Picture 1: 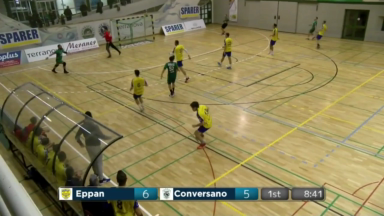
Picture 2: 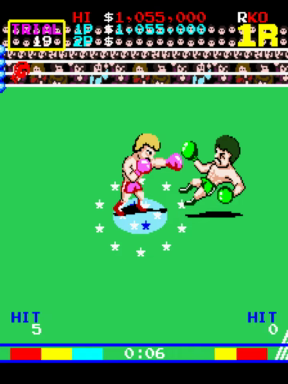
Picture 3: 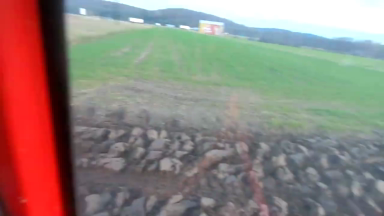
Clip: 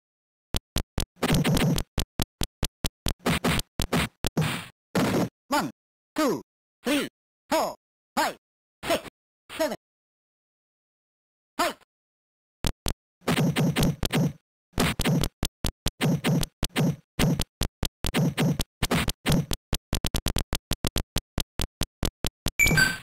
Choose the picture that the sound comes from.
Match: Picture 2